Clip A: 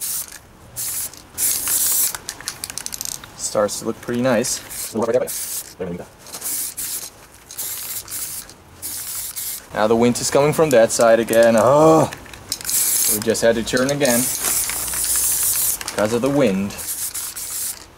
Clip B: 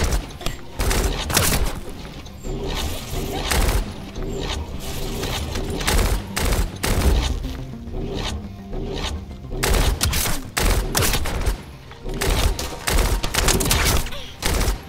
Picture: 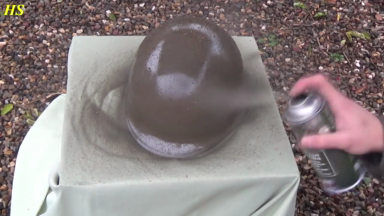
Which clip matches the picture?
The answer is A